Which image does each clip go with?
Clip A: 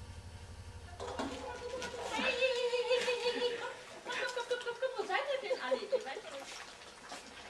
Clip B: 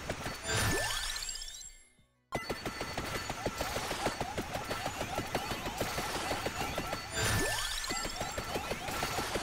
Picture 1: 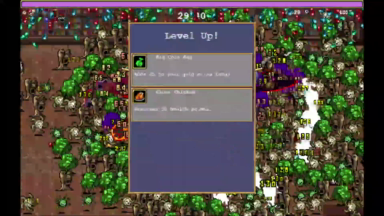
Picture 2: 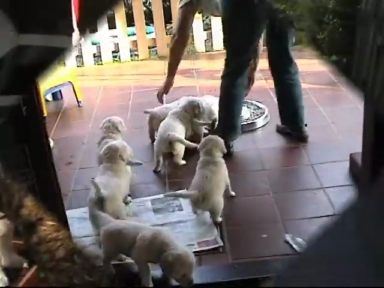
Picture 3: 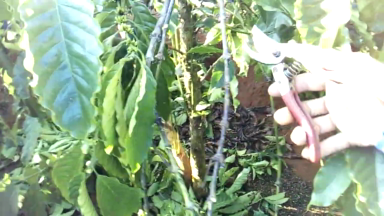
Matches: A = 2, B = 1